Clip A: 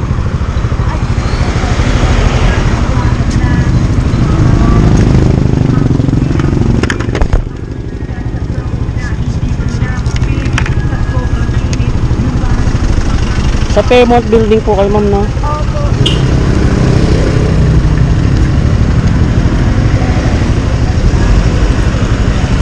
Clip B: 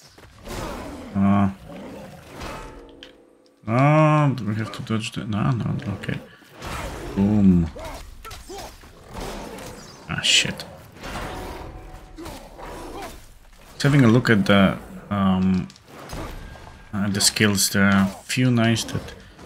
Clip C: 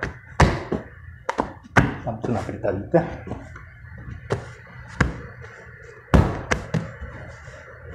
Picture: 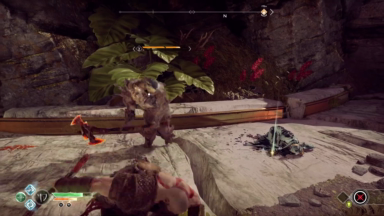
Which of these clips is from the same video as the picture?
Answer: B